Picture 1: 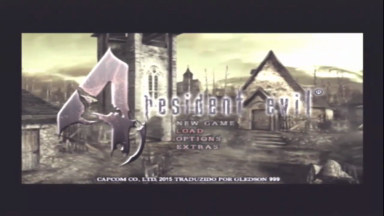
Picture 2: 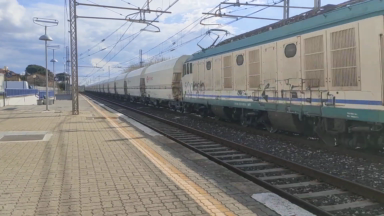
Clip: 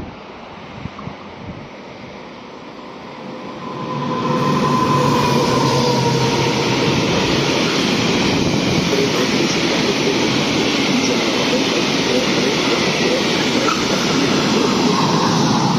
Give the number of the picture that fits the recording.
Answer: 2